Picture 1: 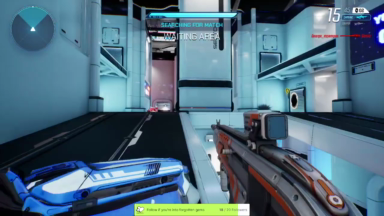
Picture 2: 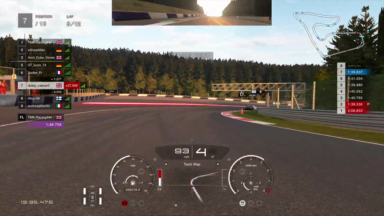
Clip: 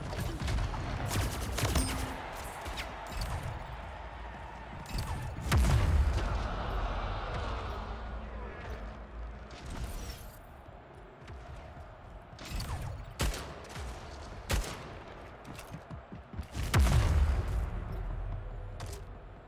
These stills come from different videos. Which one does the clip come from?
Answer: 1